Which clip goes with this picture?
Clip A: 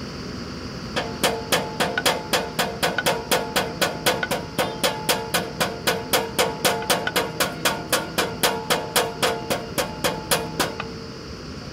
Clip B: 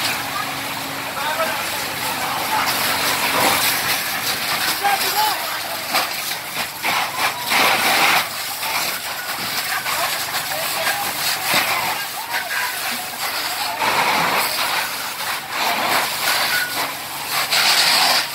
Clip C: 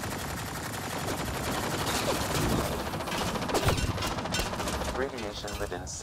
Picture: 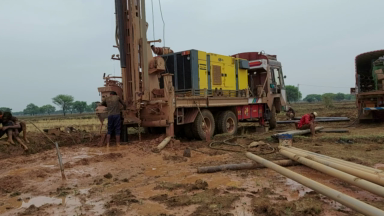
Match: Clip A